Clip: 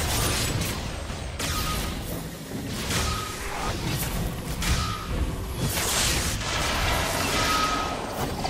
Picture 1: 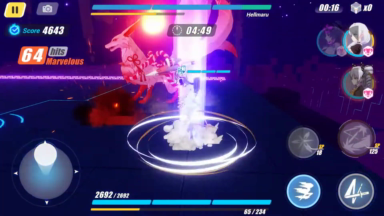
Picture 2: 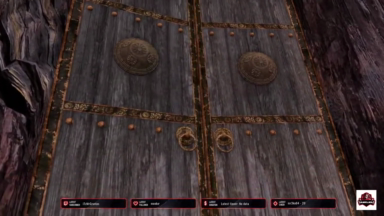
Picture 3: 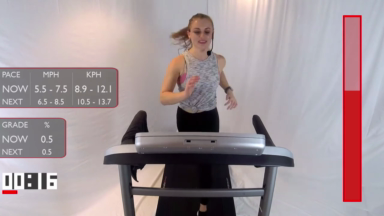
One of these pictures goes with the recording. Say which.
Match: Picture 1